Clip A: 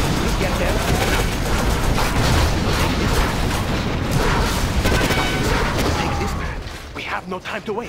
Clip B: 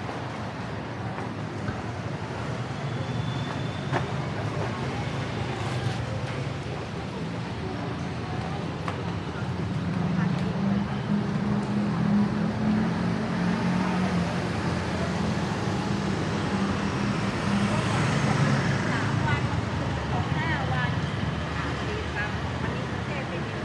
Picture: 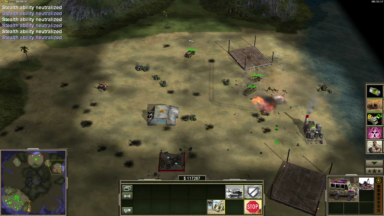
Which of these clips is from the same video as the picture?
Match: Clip A